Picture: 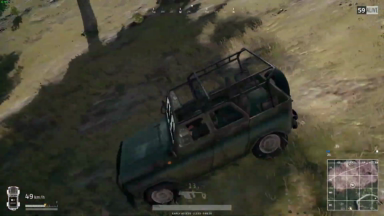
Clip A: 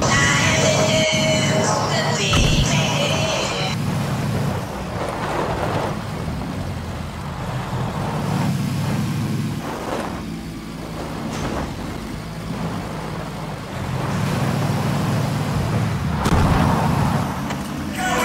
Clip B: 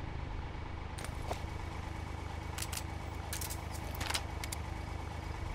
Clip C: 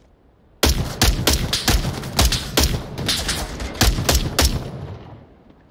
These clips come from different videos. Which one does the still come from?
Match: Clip A